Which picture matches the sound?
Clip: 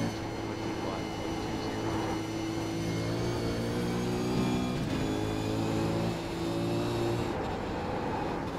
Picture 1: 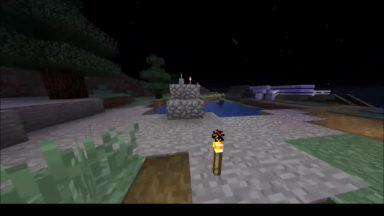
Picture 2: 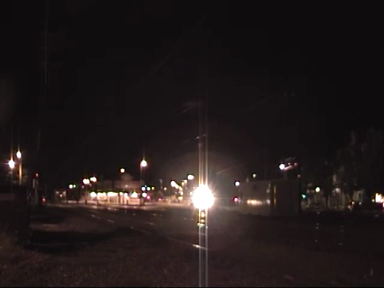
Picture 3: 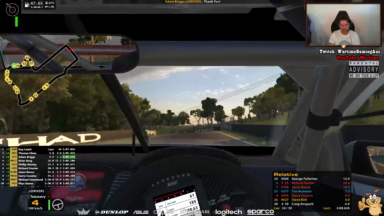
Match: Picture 3